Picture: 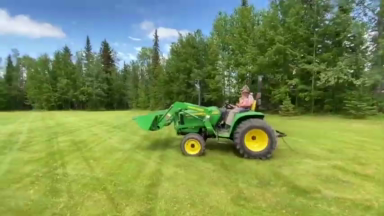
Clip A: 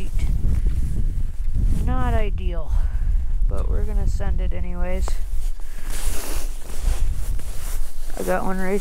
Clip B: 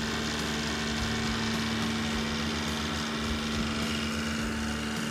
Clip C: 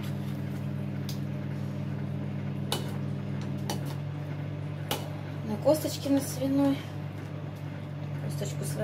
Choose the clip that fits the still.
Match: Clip B